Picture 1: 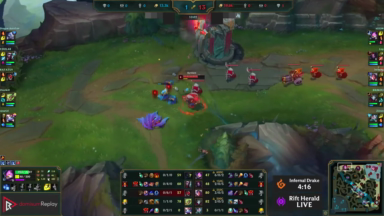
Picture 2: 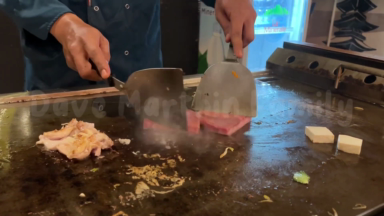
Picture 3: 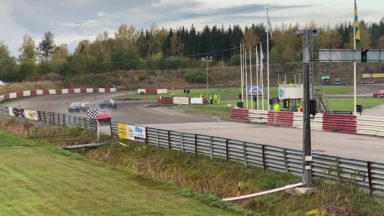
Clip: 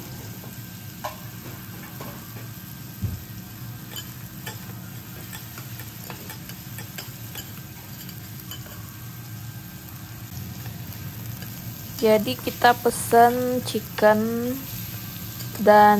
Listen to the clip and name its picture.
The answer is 2